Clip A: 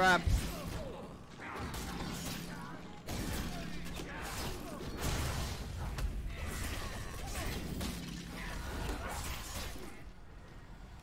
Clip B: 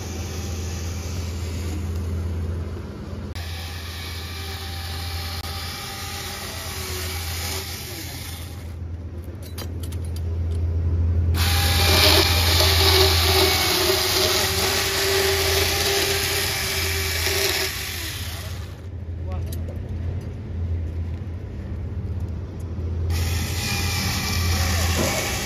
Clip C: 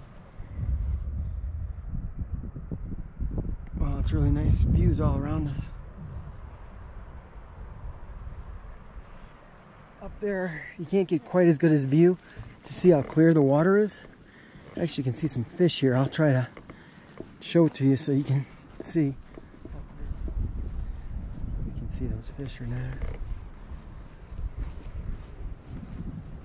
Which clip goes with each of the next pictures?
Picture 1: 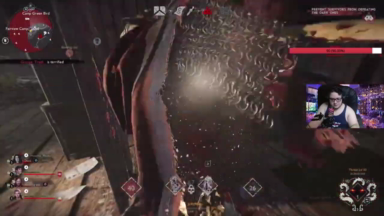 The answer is A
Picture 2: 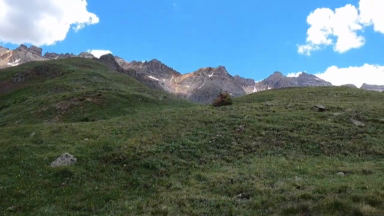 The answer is C